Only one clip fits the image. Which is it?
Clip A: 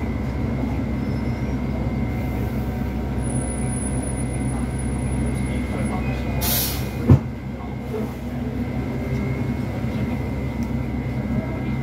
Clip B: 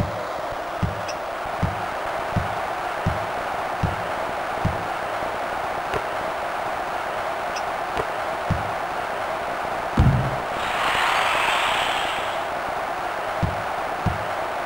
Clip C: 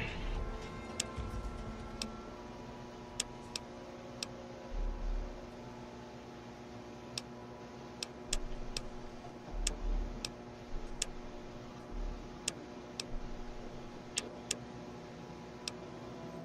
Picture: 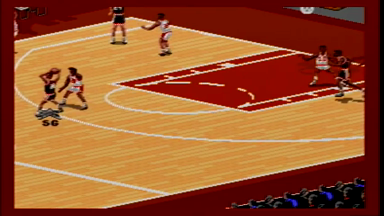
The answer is B